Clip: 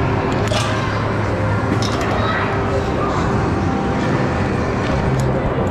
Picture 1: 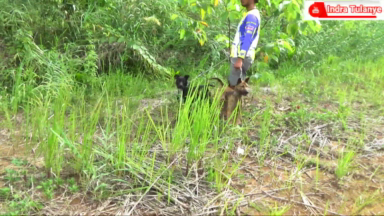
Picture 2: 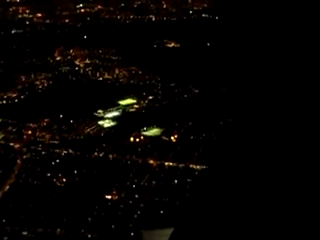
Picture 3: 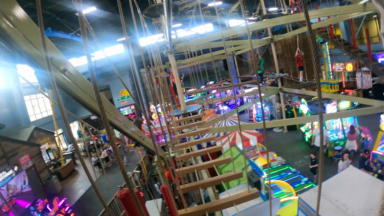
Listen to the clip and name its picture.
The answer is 3